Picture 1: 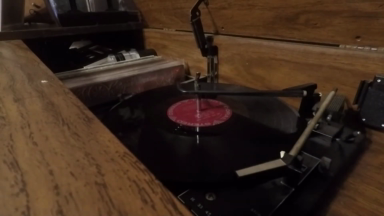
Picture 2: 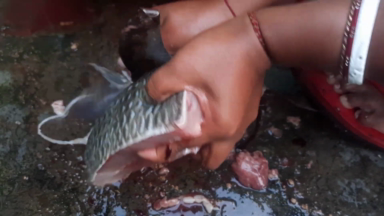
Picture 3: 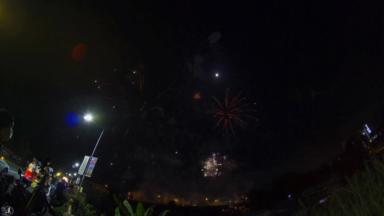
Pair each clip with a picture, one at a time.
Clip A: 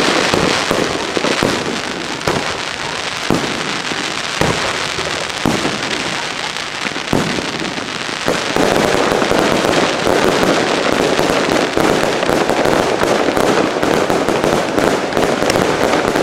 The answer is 3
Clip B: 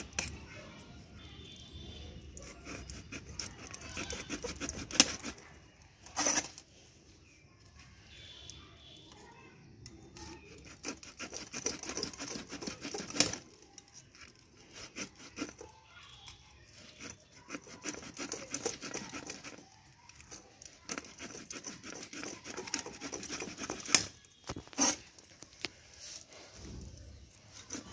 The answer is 2